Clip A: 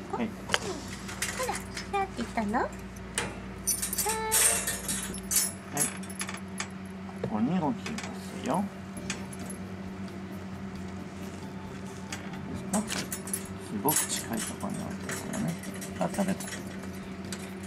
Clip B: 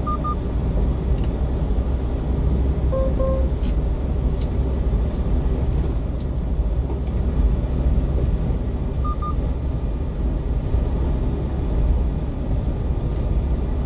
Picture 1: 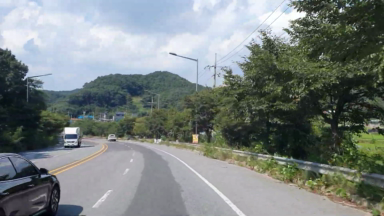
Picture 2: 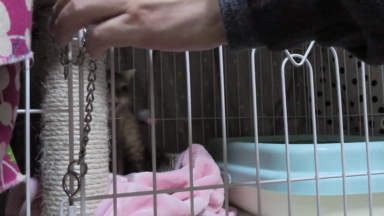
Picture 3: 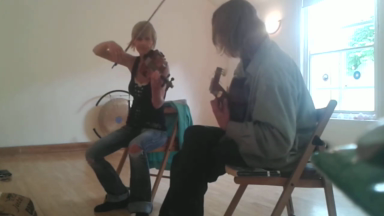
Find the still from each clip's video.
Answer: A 2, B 1